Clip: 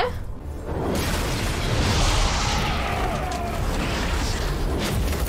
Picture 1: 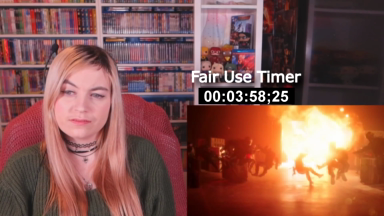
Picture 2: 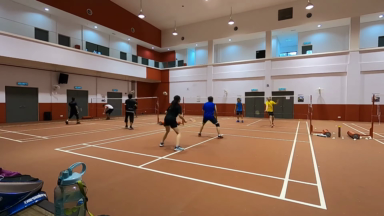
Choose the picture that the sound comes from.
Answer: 1